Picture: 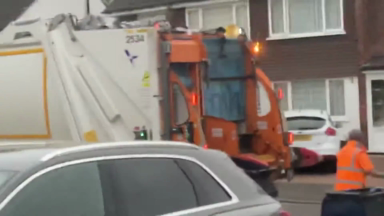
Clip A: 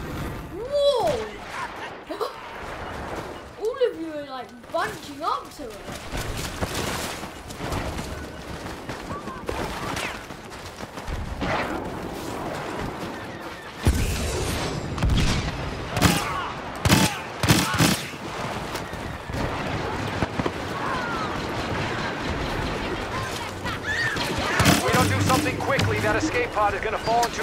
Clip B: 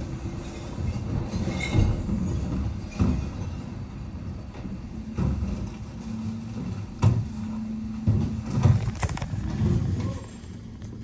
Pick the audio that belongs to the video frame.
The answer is B